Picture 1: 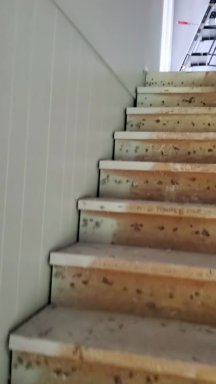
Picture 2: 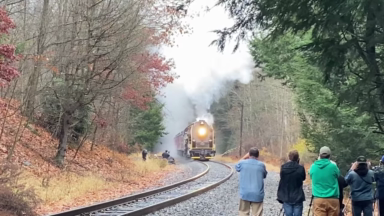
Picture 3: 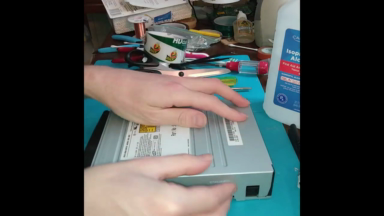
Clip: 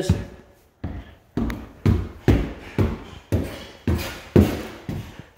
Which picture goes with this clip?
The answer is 1